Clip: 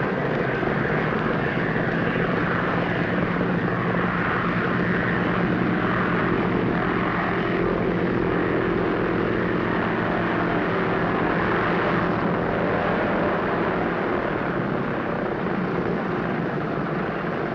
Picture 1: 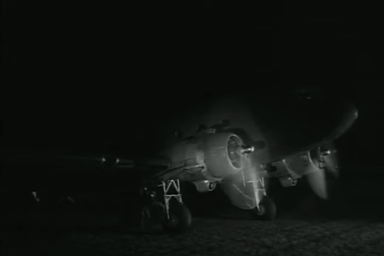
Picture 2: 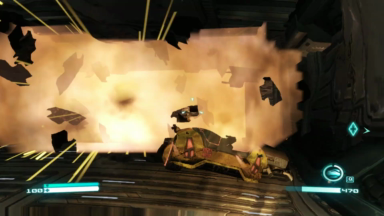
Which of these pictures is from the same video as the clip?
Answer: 1